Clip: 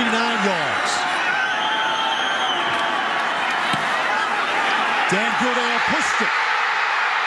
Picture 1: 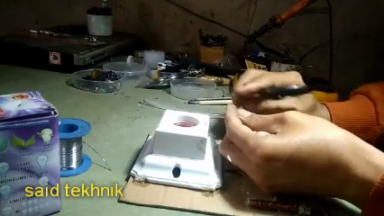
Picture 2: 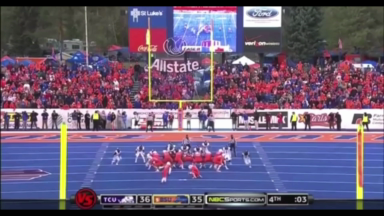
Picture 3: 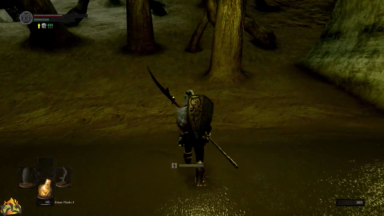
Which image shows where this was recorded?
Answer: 2